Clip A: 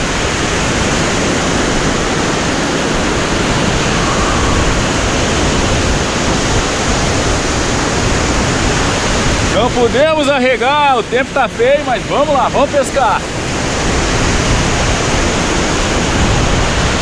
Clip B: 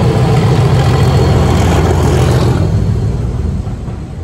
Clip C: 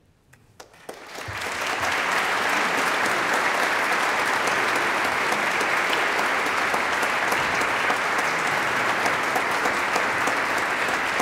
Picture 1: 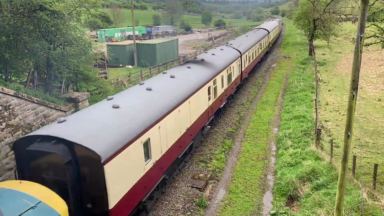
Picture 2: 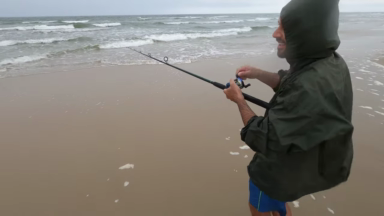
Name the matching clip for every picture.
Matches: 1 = B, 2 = A